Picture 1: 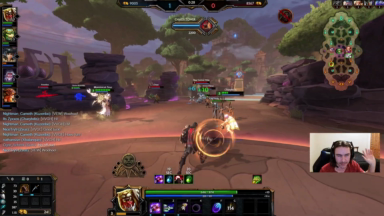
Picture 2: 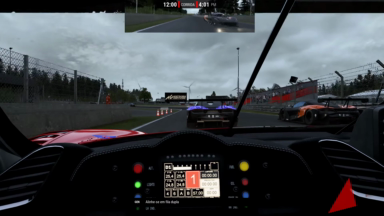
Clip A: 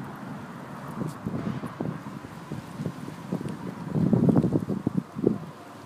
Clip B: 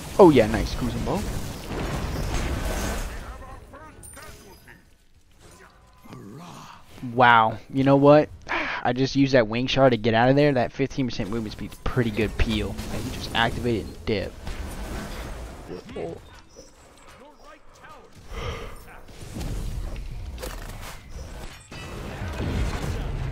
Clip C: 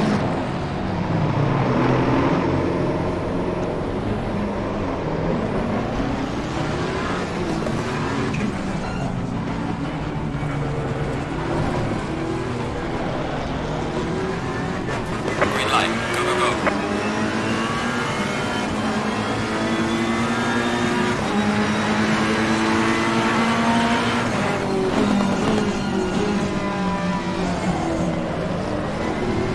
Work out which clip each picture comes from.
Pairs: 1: B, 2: C